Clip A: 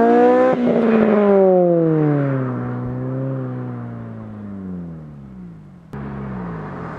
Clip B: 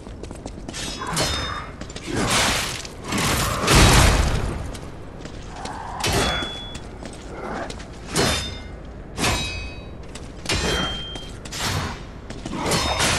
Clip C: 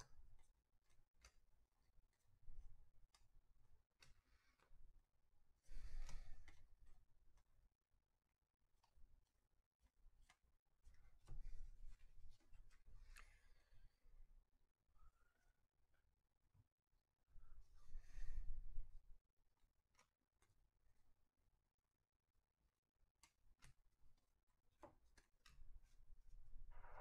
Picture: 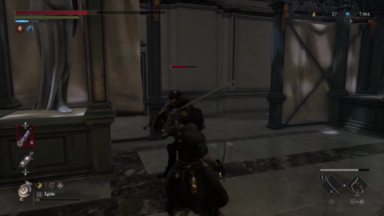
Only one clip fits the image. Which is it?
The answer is B